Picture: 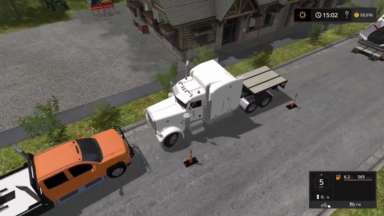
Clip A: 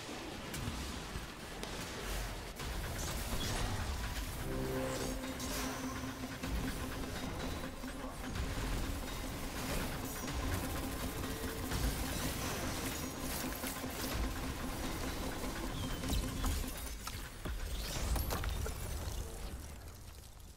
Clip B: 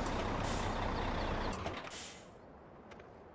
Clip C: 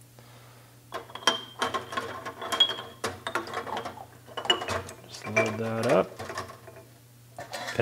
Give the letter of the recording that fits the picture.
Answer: B